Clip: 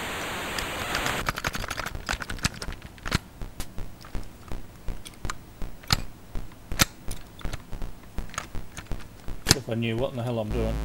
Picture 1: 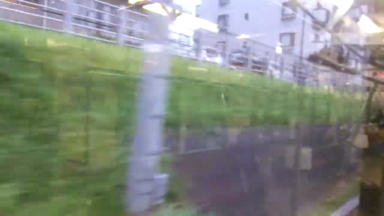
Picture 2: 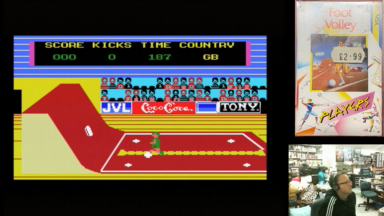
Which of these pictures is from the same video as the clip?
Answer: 2